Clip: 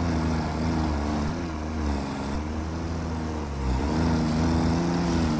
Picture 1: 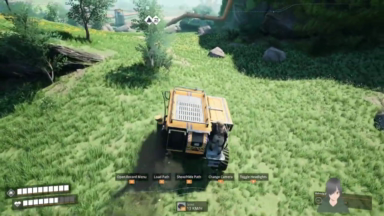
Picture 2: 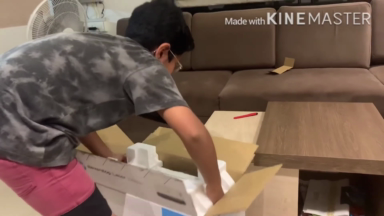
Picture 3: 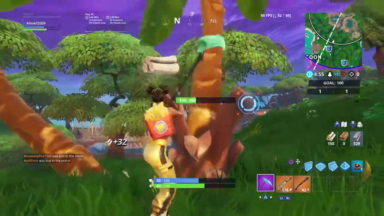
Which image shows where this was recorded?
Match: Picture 1